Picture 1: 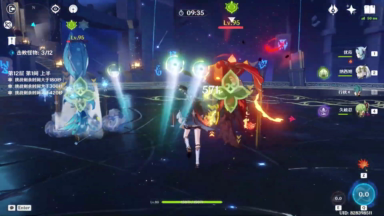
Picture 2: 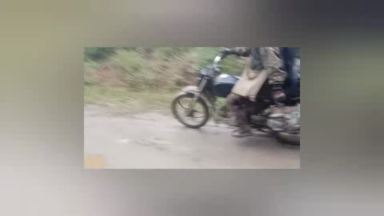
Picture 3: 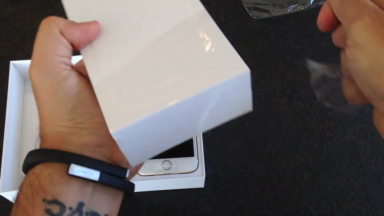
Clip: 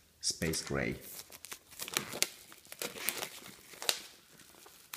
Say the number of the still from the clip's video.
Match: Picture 3